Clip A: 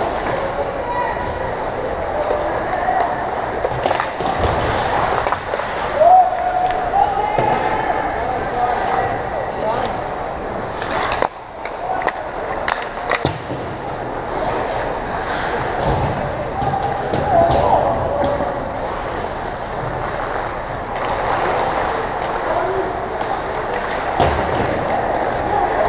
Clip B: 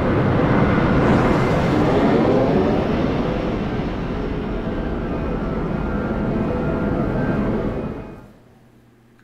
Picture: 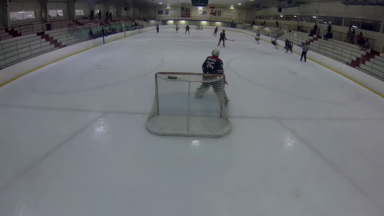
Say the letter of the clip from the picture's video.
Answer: A